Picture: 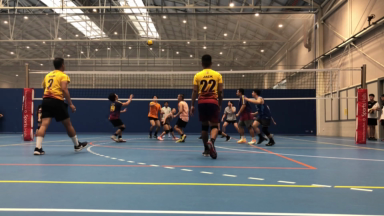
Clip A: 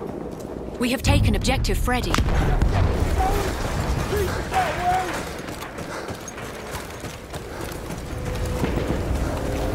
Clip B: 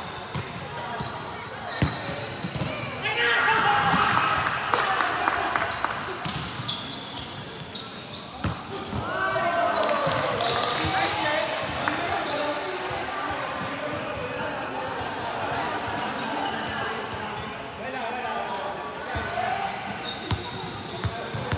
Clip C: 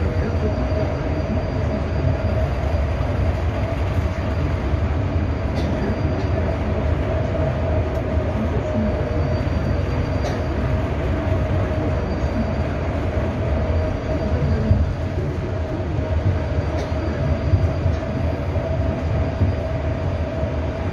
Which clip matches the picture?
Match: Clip B